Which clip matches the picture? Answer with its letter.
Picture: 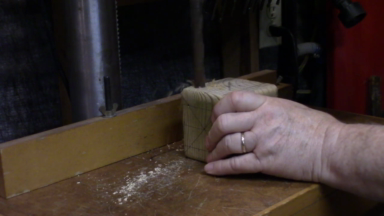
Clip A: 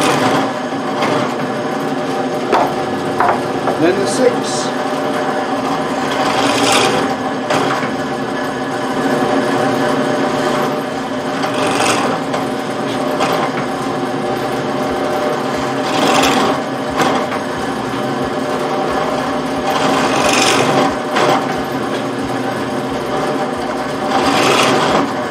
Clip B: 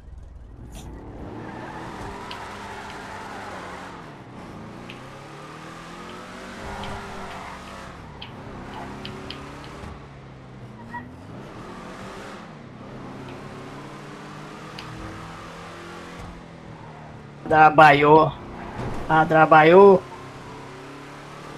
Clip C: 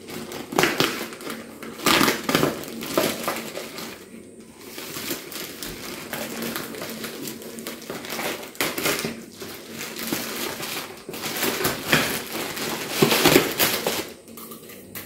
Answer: A